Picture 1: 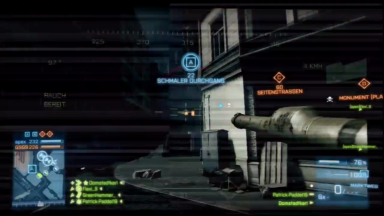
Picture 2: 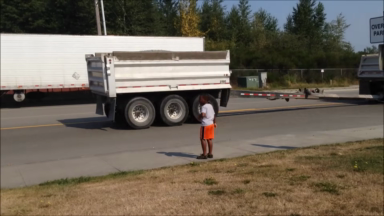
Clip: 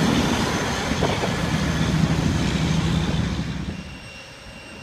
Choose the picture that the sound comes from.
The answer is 2